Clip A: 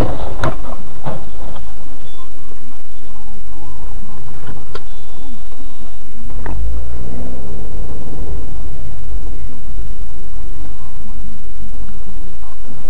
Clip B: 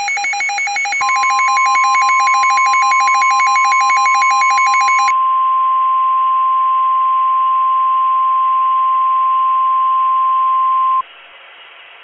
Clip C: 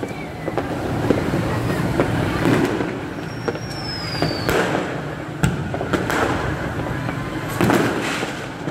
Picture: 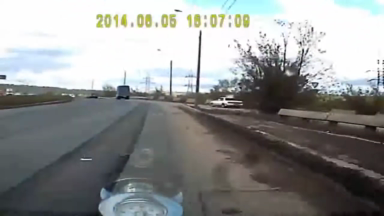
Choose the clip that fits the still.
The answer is A